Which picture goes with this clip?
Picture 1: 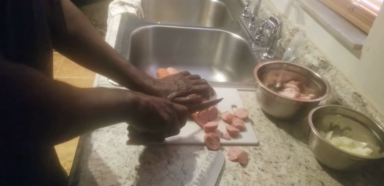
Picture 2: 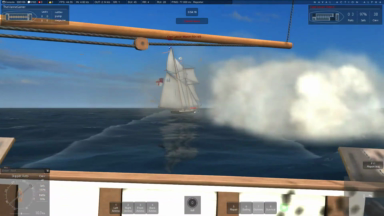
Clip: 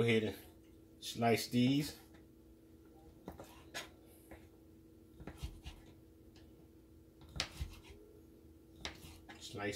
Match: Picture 1